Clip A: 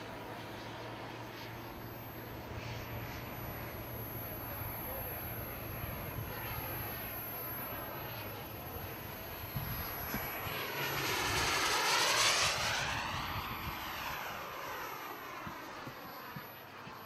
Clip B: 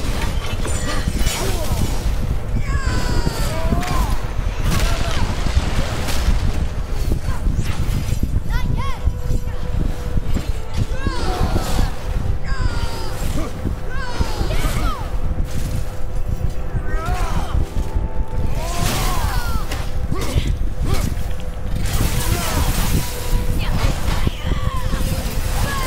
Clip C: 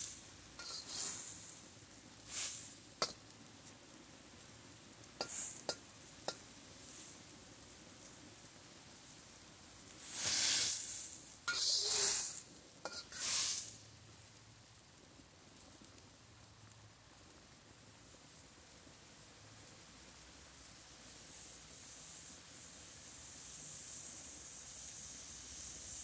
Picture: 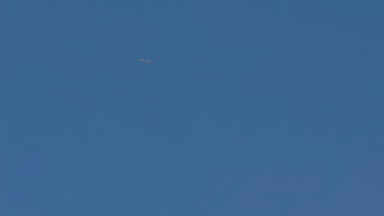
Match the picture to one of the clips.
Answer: A